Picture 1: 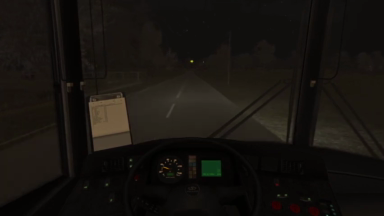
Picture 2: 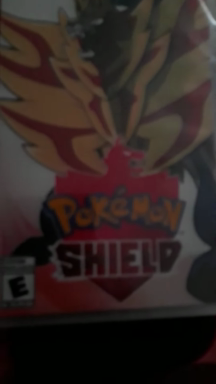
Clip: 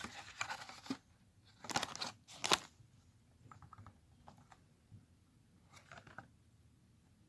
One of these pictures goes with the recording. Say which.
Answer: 2